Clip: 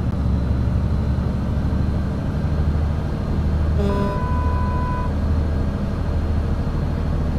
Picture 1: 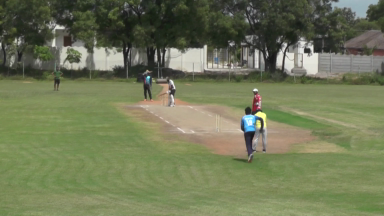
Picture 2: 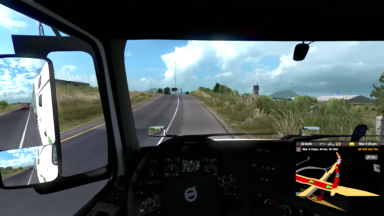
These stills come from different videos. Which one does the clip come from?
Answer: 2